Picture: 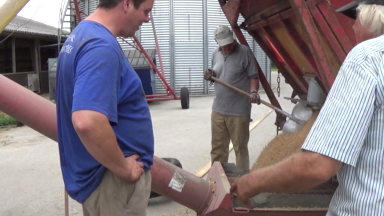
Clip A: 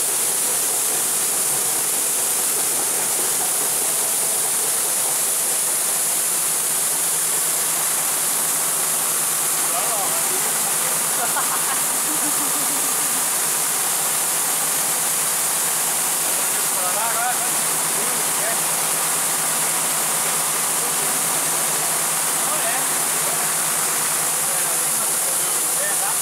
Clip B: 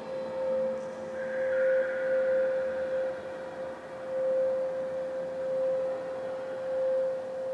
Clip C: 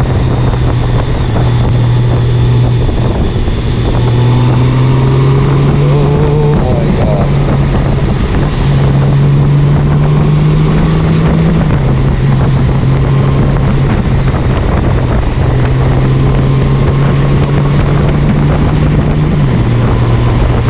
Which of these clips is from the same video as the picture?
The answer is A